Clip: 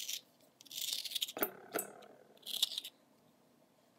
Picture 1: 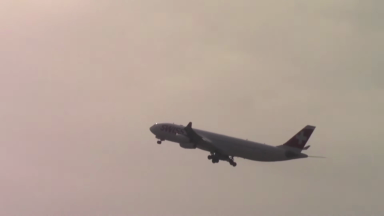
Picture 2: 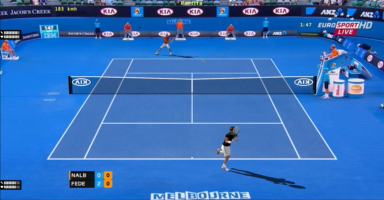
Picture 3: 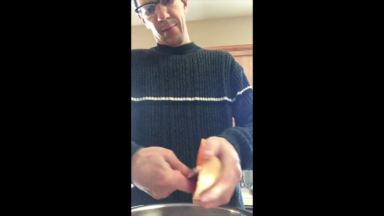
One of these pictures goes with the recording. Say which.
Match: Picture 3